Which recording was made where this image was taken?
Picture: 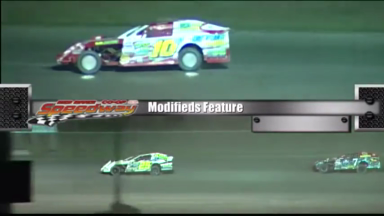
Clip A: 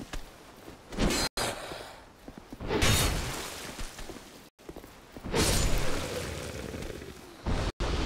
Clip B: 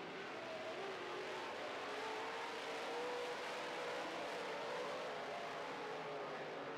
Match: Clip B